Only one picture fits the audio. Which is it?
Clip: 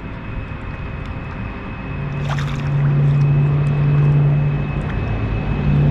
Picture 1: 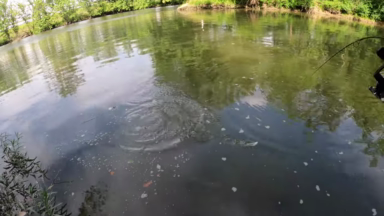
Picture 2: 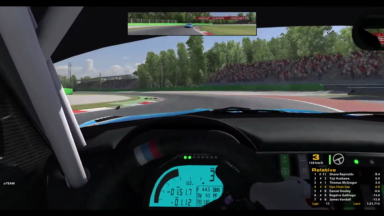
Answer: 1